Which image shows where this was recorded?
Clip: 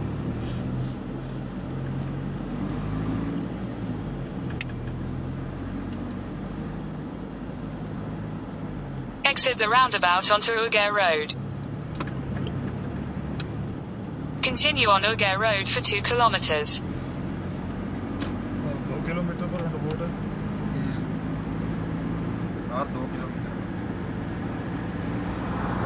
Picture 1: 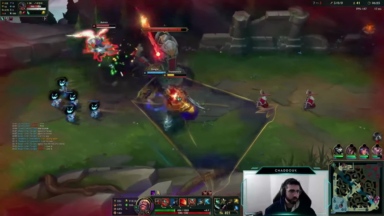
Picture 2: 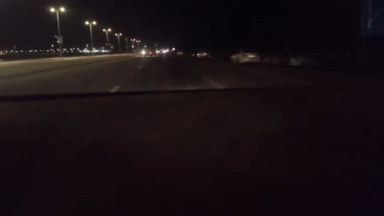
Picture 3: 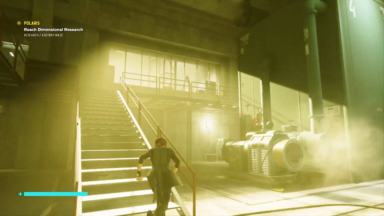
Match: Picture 2